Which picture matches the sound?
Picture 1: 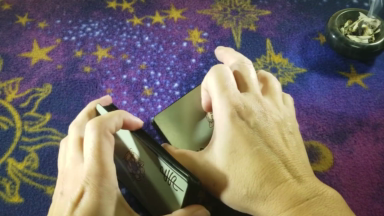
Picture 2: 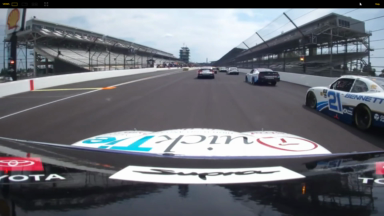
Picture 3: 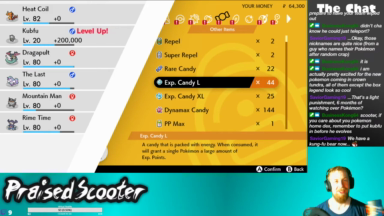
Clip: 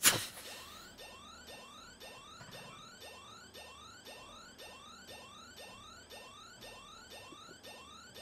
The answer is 3